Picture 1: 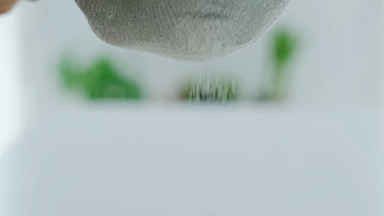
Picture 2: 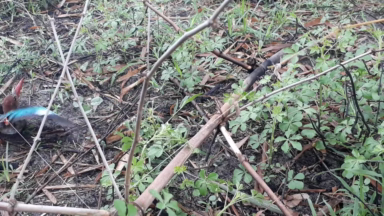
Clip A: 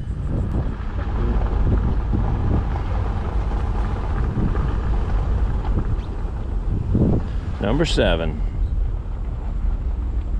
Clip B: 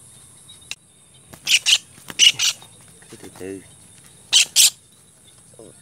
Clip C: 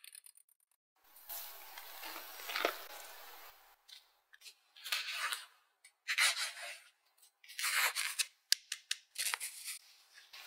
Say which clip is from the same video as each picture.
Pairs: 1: C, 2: B